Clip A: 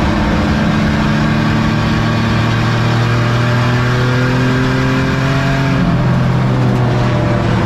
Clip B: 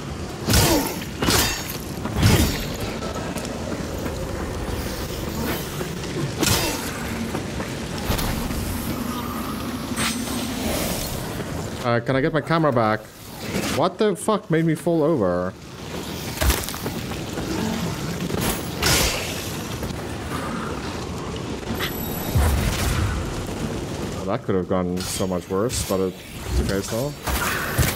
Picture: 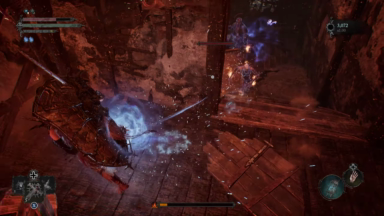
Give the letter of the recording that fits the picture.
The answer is B